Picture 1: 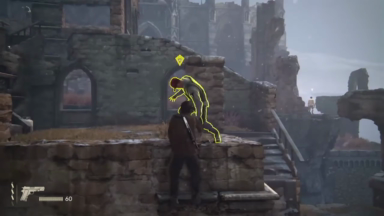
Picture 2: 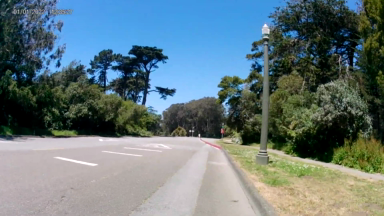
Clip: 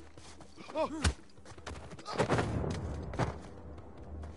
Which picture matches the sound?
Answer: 1